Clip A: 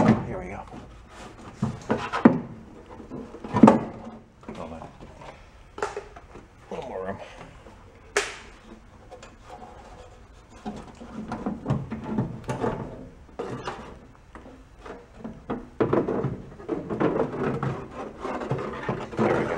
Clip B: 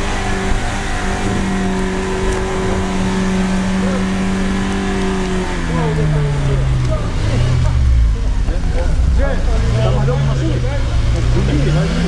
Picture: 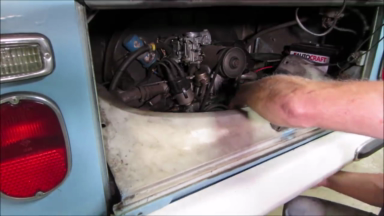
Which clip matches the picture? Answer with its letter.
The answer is A